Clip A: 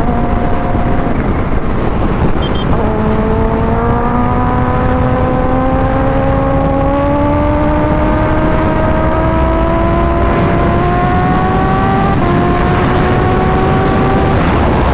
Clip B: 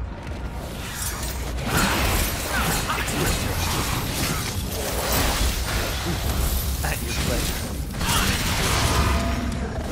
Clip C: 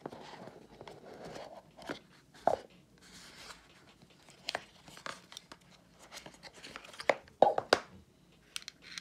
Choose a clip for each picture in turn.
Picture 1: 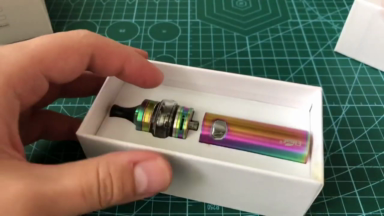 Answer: C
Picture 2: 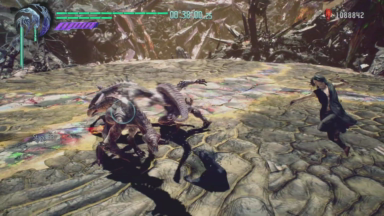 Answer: B